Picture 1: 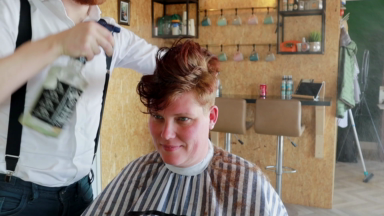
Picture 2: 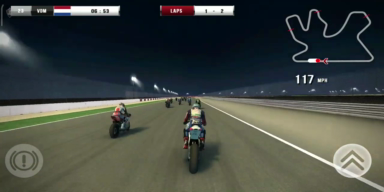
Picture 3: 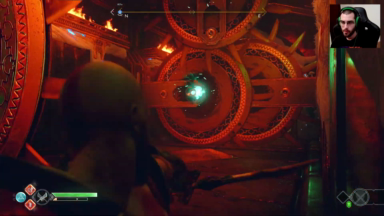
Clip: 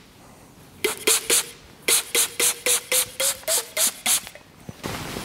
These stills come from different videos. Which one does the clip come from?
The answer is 1